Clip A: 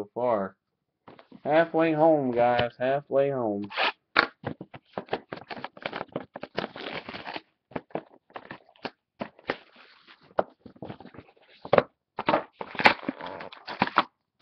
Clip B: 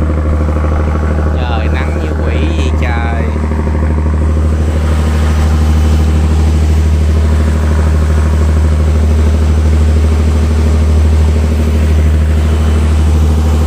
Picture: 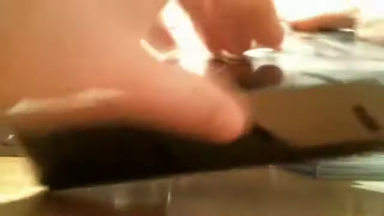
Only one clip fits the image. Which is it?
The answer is A